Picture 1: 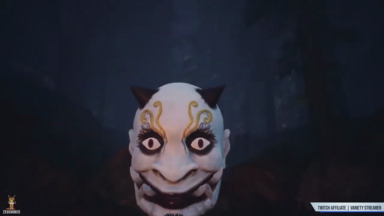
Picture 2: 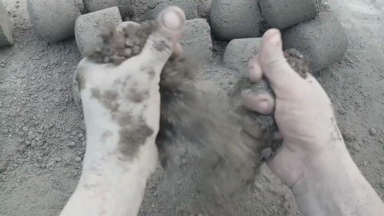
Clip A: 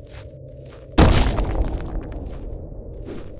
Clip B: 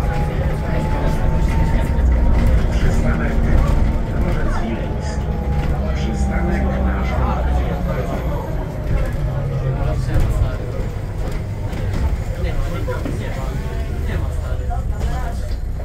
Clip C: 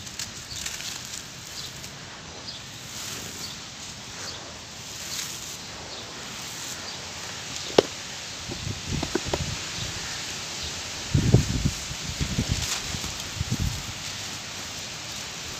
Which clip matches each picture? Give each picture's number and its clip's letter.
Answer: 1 A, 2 C